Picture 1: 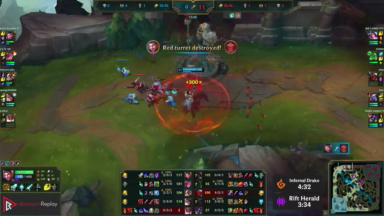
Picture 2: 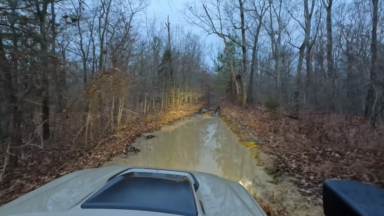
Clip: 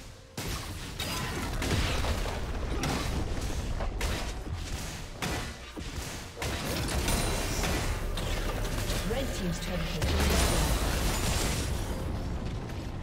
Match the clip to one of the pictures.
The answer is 1